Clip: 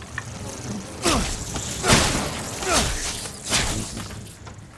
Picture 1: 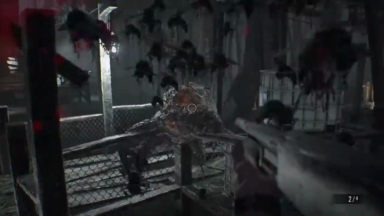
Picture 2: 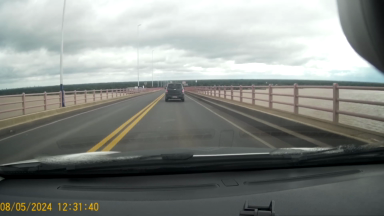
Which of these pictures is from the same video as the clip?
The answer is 1